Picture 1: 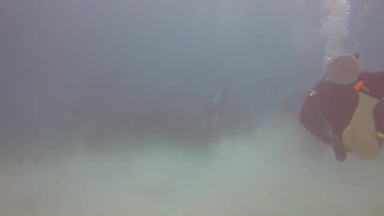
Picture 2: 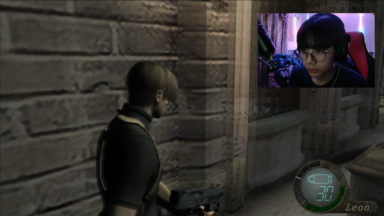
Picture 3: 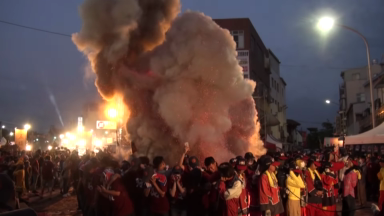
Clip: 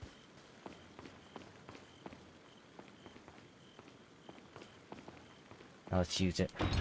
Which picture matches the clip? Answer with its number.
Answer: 2